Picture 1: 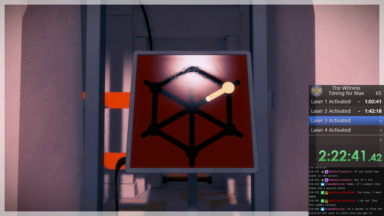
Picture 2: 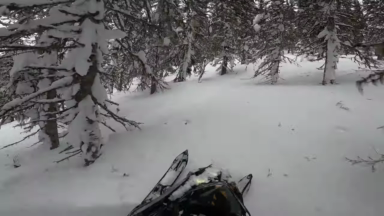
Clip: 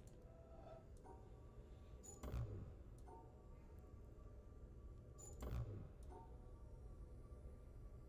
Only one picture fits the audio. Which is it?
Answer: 1